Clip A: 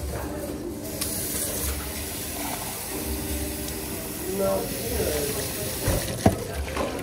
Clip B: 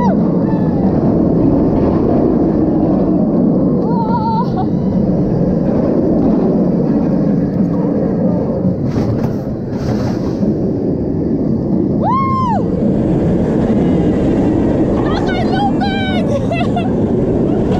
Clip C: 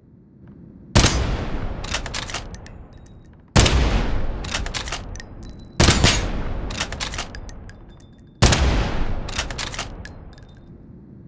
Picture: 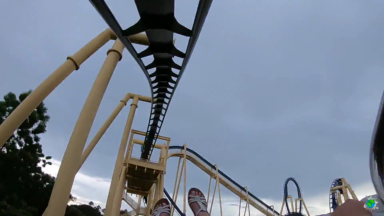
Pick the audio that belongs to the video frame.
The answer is B